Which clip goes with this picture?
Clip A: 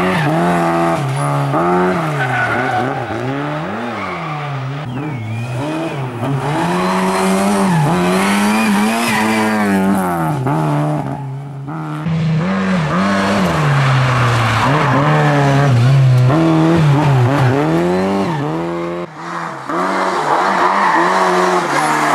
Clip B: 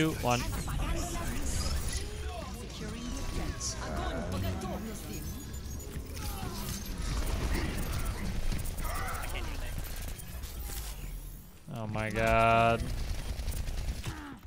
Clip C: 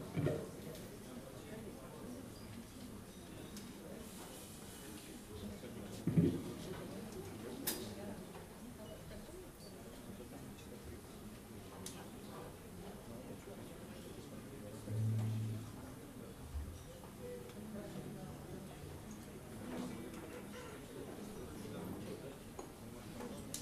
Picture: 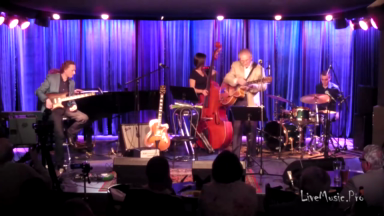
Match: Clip C